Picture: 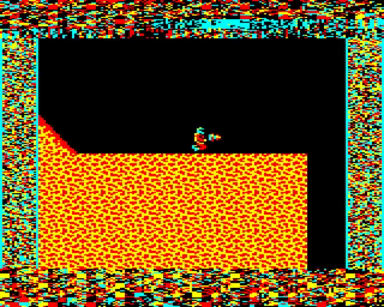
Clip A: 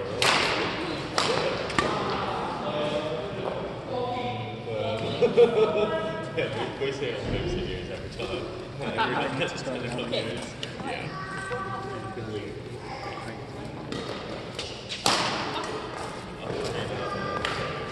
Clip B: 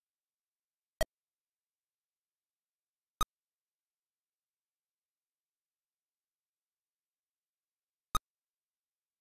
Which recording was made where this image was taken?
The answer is B